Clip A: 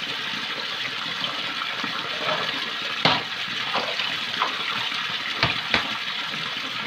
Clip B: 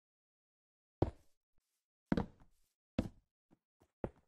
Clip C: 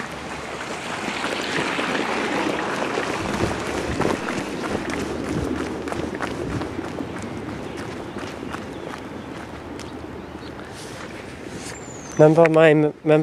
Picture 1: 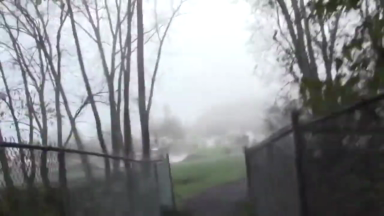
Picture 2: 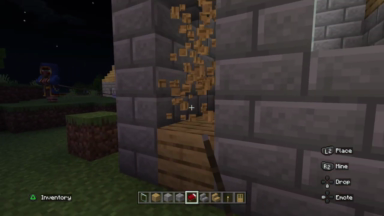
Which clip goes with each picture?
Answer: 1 C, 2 B